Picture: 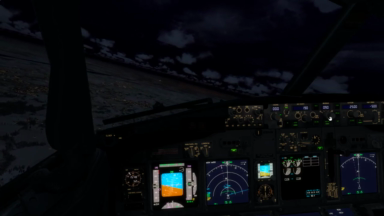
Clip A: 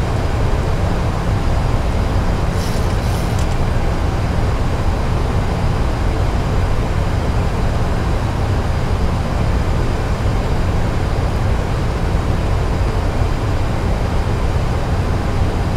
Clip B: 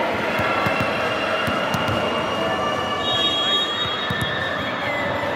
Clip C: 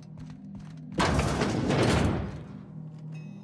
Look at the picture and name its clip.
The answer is A